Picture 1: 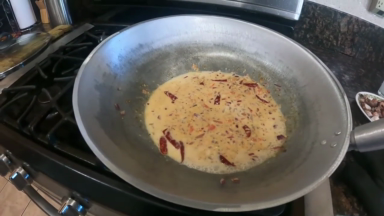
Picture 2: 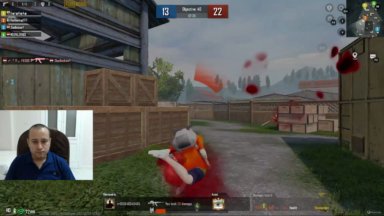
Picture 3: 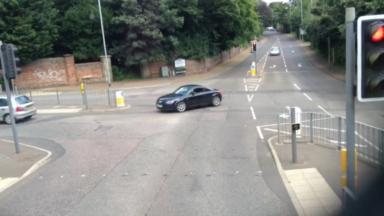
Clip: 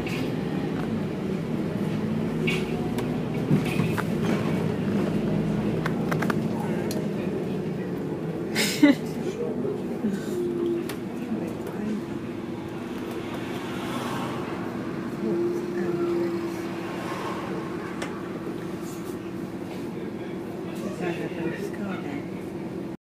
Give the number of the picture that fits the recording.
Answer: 3